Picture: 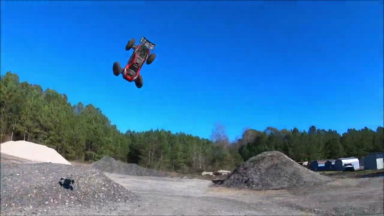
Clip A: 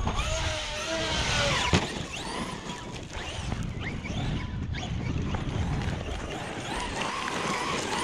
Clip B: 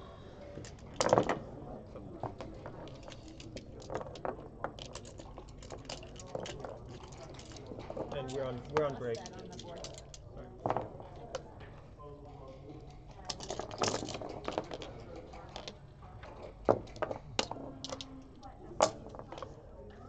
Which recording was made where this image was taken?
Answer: A